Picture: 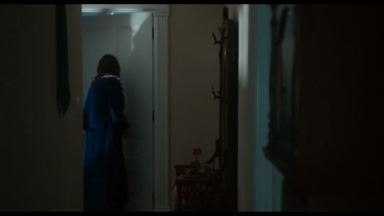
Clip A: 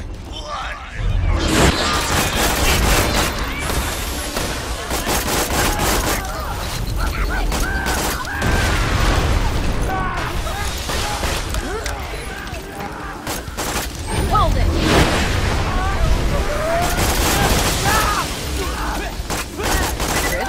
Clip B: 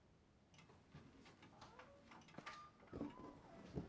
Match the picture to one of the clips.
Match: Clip B